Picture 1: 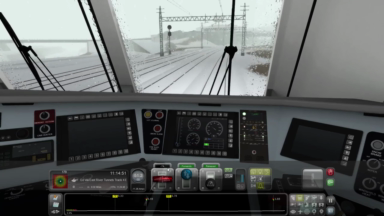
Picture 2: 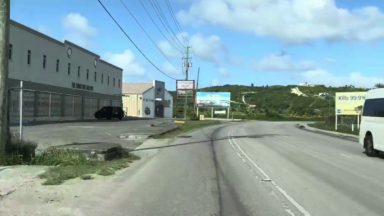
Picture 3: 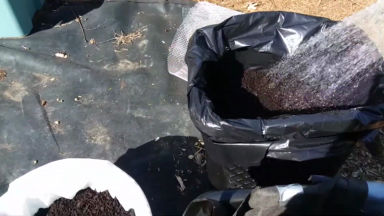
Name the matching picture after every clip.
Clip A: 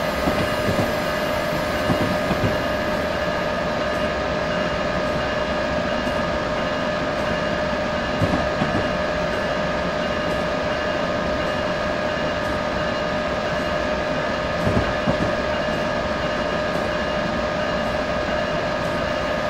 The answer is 1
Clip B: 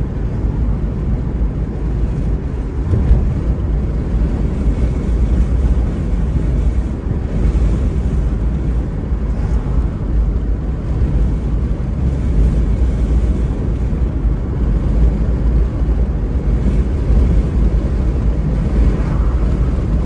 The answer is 2